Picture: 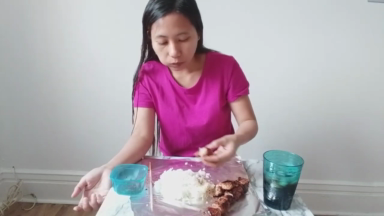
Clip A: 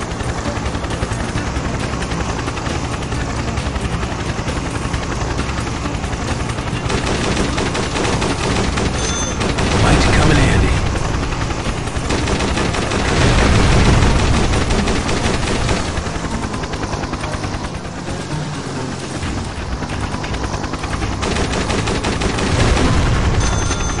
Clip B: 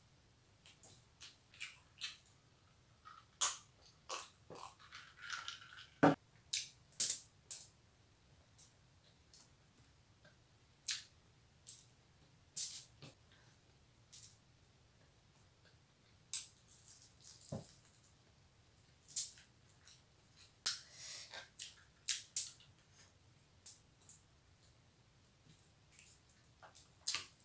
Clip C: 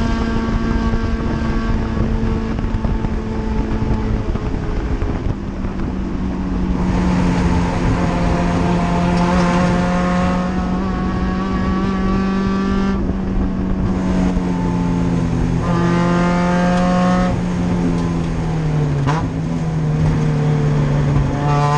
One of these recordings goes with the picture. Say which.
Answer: B